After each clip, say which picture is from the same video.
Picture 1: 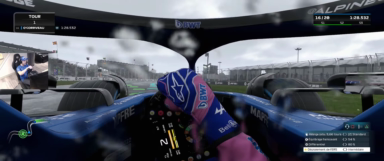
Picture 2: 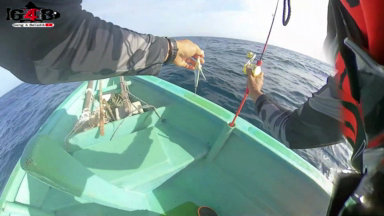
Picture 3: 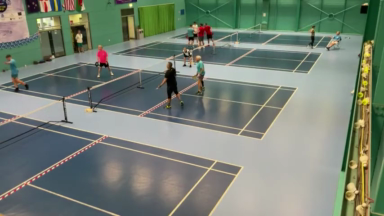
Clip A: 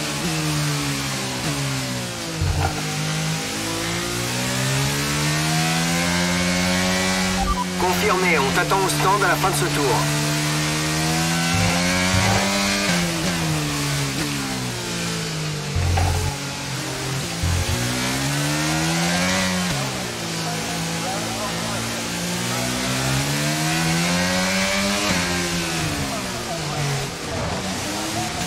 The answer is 1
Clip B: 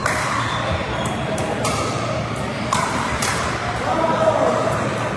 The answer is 3